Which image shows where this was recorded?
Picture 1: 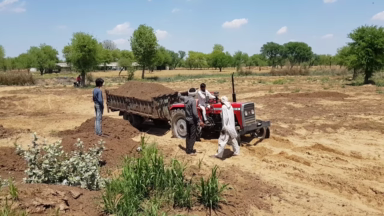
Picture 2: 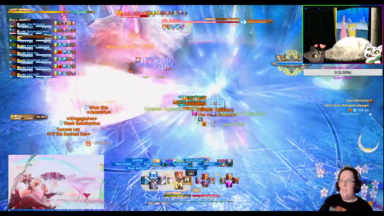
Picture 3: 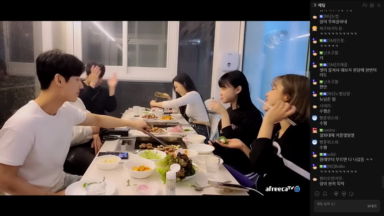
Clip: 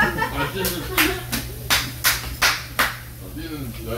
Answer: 3